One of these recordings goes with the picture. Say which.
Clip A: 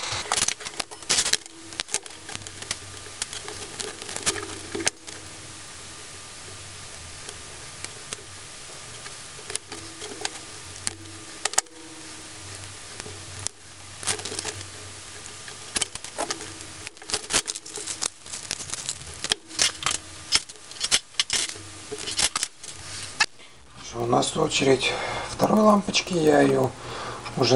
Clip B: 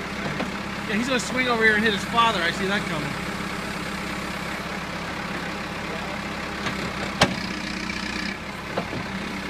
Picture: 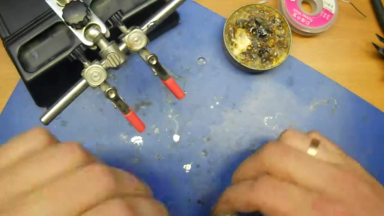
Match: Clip A